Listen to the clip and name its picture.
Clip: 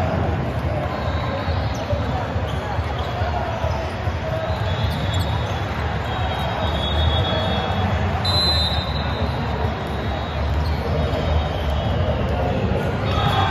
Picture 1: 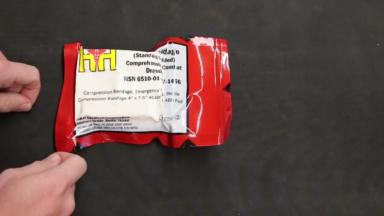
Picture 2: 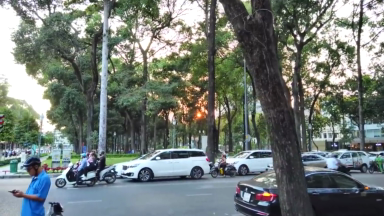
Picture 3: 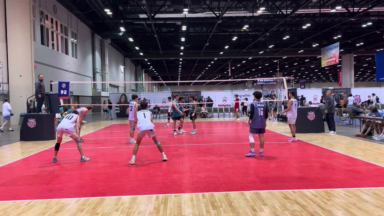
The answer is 3